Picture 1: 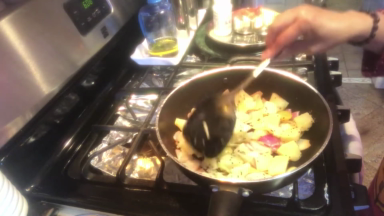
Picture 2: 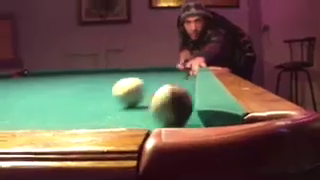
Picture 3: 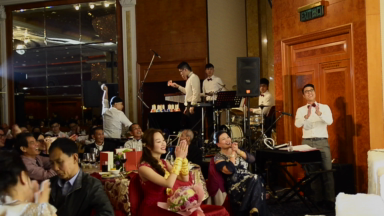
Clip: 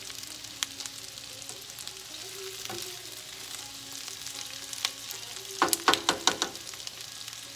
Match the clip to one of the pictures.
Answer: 1